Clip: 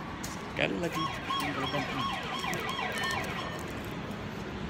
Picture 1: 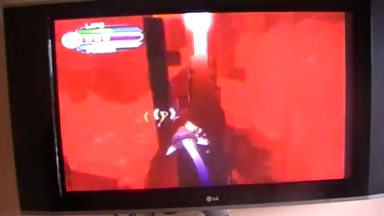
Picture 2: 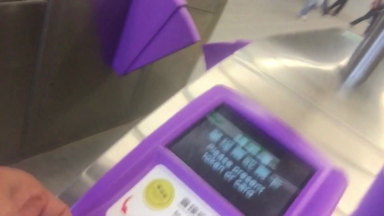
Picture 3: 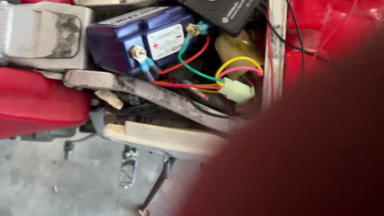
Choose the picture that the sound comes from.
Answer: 2